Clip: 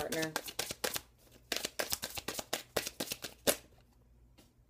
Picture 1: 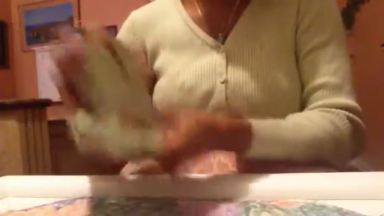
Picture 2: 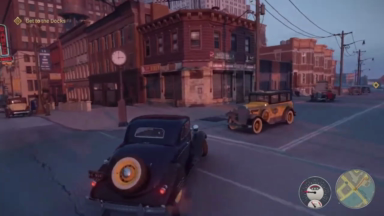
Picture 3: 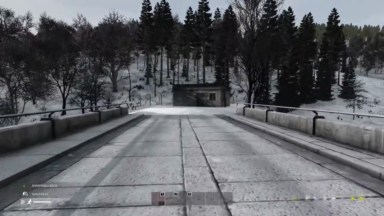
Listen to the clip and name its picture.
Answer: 1